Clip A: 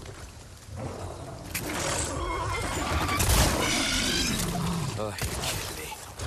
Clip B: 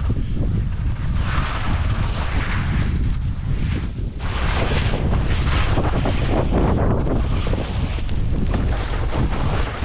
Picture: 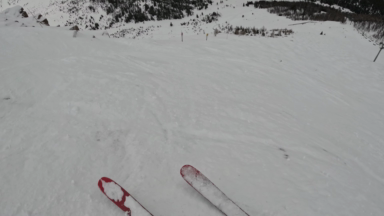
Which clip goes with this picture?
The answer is B